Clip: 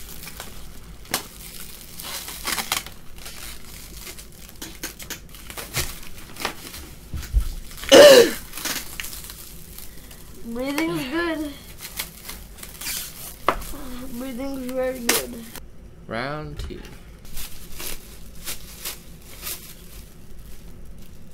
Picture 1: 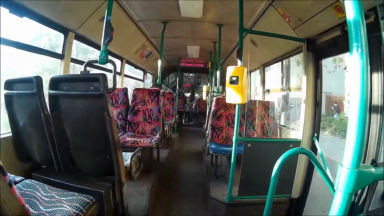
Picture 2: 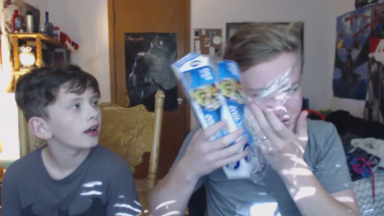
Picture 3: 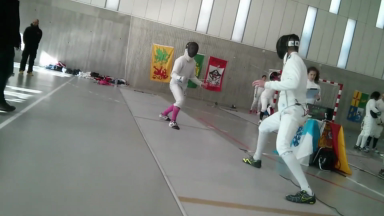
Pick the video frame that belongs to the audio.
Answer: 2